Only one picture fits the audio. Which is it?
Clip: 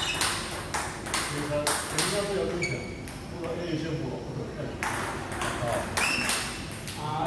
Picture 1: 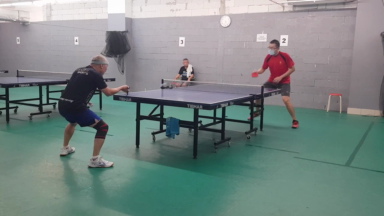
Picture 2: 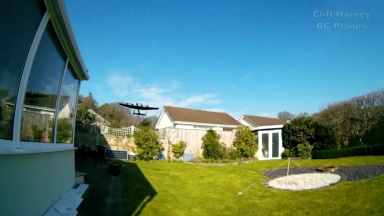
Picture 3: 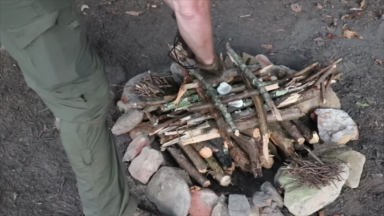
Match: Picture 1